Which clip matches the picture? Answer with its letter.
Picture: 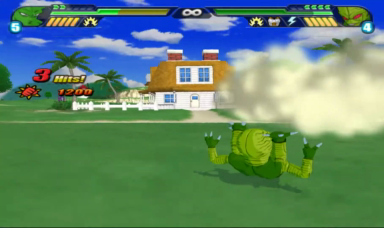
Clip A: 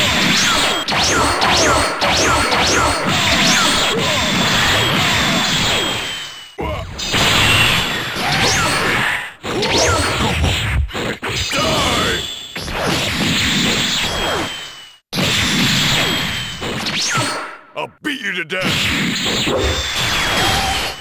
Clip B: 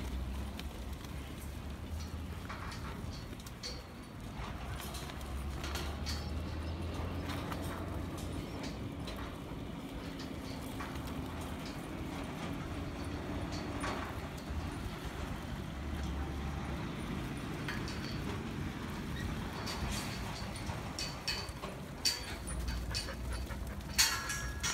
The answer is A